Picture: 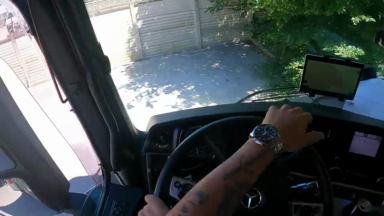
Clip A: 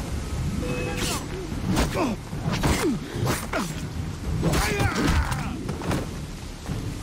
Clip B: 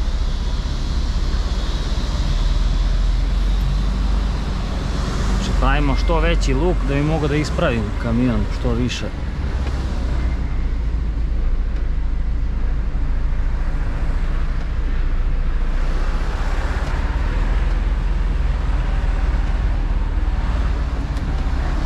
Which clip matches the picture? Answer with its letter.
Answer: B